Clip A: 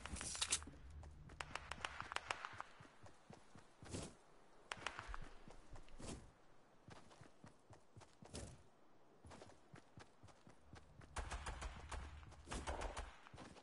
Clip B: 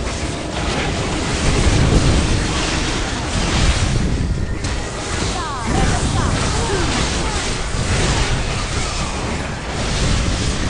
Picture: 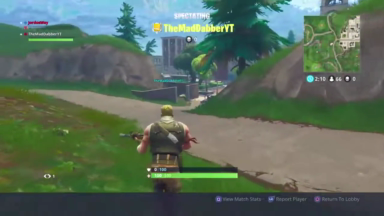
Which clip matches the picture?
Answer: A